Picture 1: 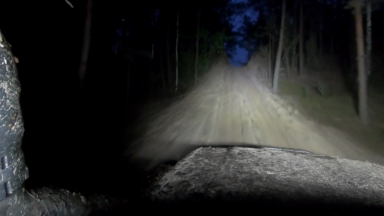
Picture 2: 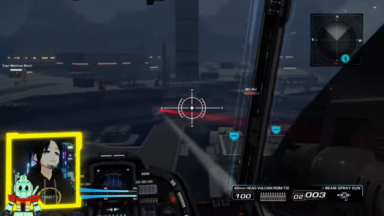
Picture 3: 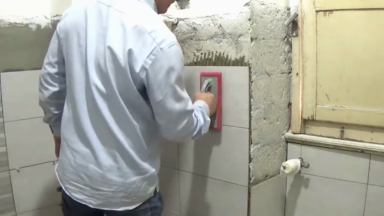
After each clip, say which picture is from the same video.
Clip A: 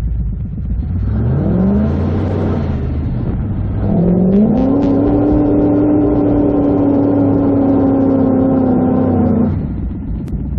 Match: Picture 1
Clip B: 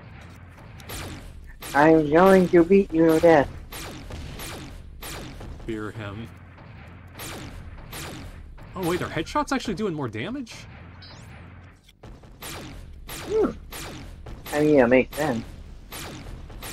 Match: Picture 2